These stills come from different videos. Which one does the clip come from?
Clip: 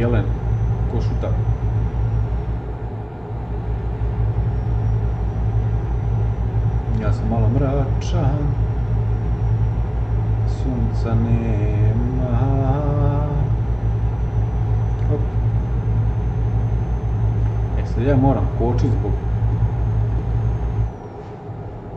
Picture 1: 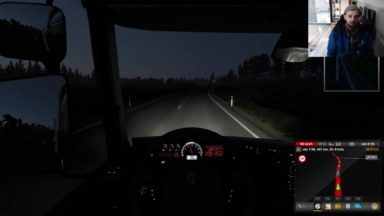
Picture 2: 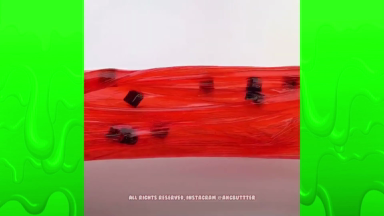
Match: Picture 1